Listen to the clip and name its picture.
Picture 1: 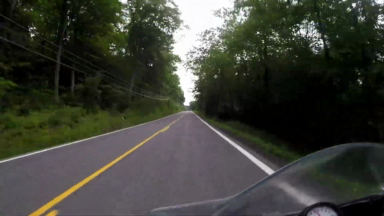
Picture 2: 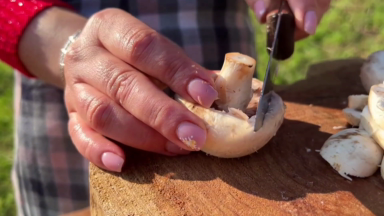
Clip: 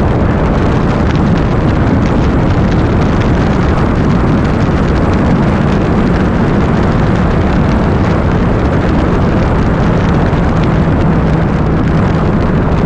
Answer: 1